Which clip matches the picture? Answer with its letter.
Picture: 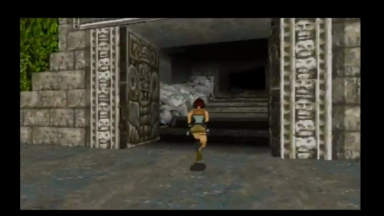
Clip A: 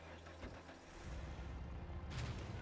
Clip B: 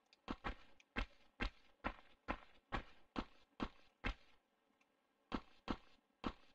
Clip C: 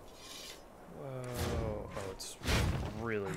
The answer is B